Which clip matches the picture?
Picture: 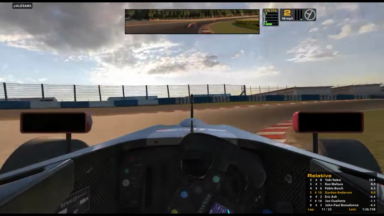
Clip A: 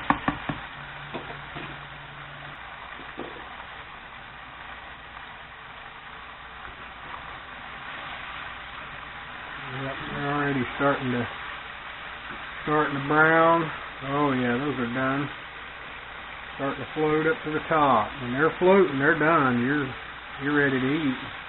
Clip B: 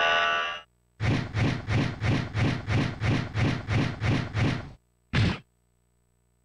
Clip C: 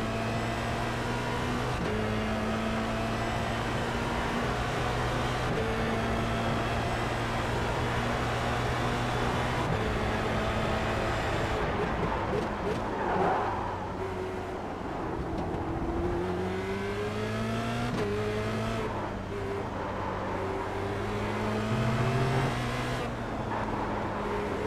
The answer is C